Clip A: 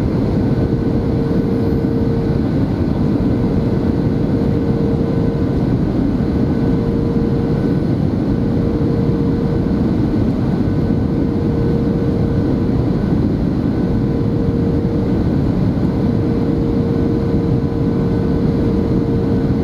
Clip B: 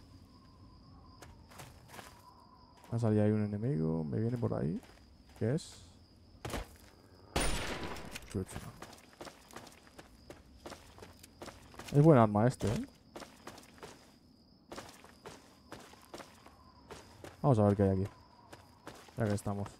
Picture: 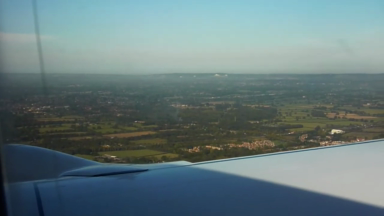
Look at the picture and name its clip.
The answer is A